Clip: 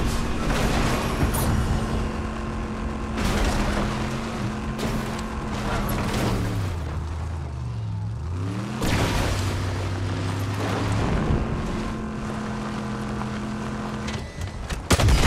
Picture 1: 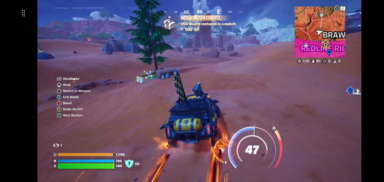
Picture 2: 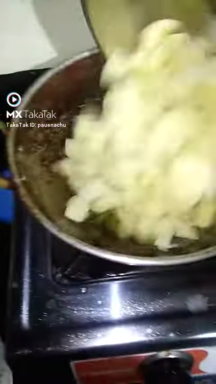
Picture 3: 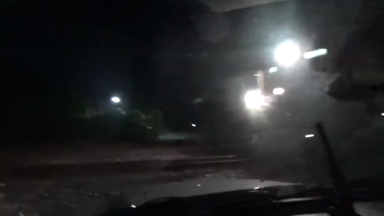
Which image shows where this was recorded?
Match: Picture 1